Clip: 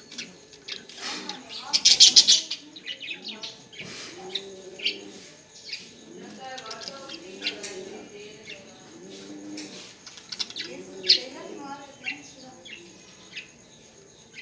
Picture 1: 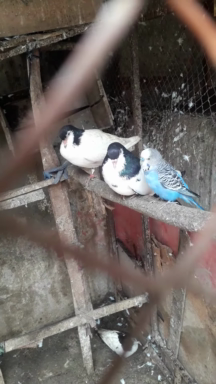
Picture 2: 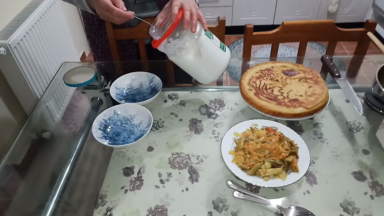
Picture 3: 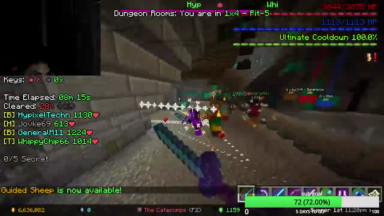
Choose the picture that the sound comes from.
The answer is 1